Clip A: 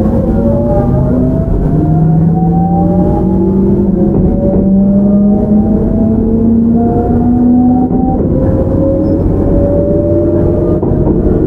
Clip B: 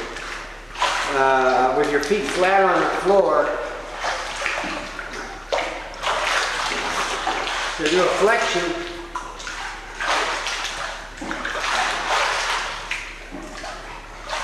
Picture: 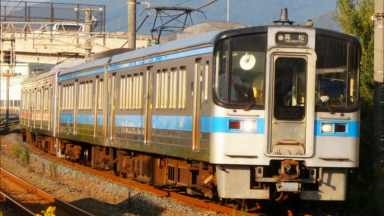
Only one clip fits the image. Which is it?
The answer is A